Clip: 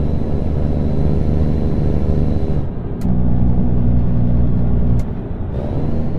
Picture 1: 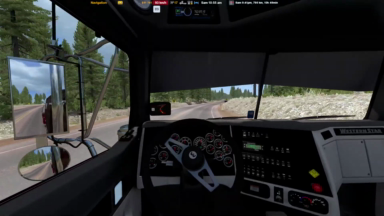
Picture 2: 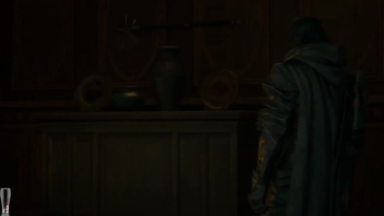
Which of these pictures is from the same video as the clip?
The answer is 1